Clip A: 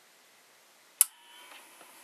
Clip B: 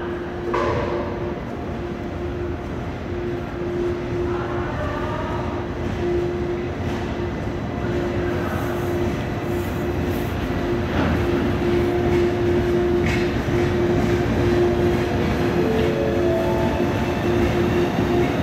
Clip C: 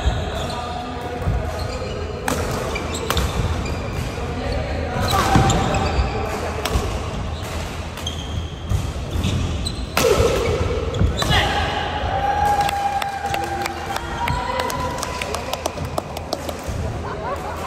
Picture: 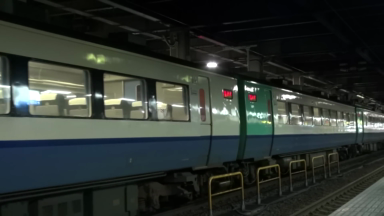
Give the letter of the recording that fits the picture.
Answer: B